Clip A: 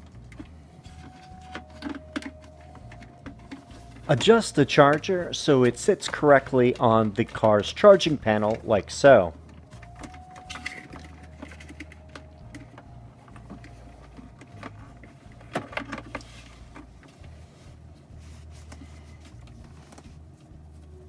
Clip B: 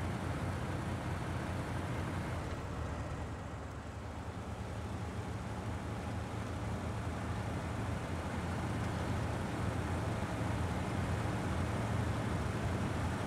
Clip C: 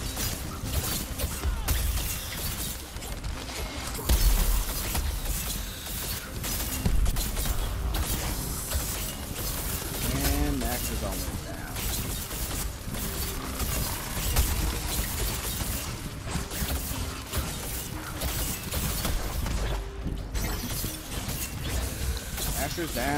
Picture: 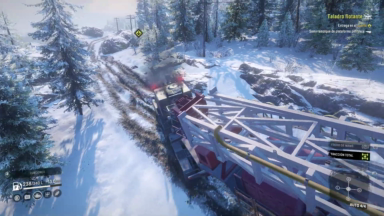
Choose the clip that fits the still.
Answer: B